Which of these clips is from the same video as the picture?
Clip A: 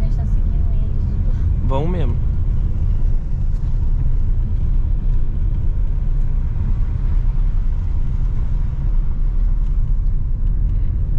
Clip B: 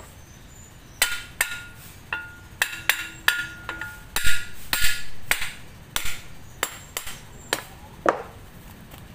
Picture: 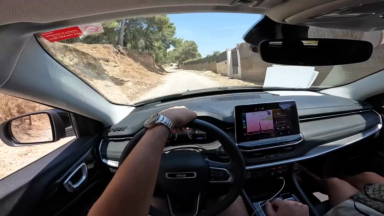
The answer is A